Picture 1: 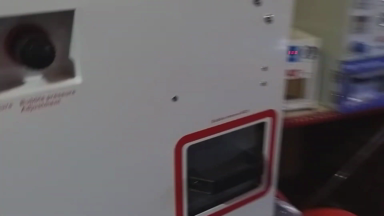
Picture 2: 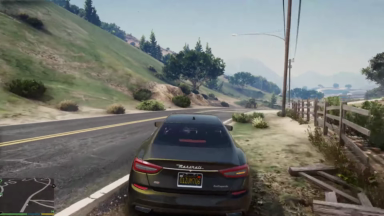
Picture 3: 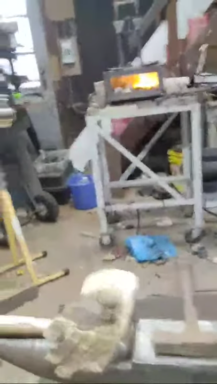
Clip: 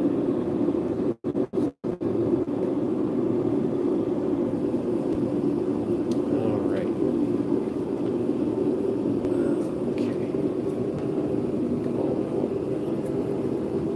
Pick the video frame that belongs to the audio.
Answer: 3